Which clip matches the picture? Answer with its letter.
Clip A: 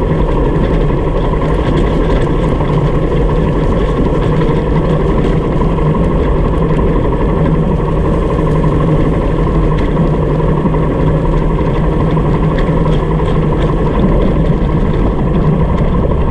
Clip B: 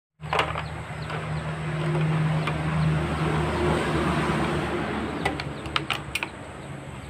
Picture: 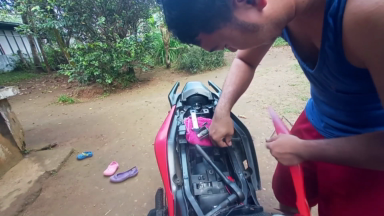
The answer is B